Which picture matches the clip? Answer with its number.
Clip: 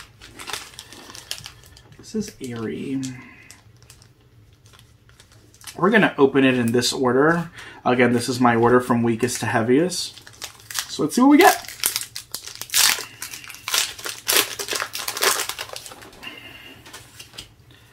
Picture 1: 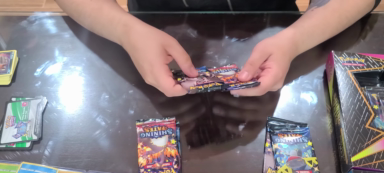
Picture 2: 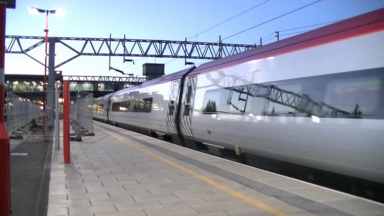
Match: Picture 1